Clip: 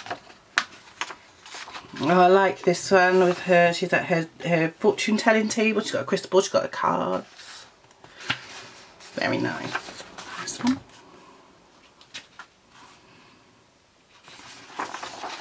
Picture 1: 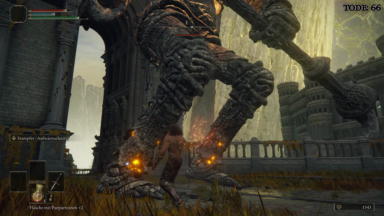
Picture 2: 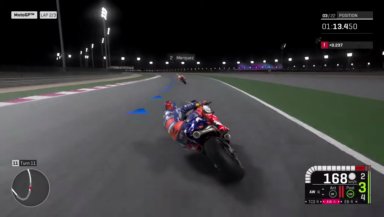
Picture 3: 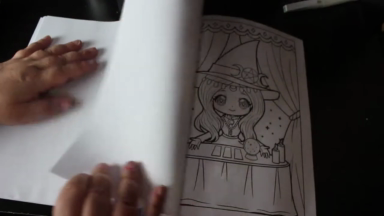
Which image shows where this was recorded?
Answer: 3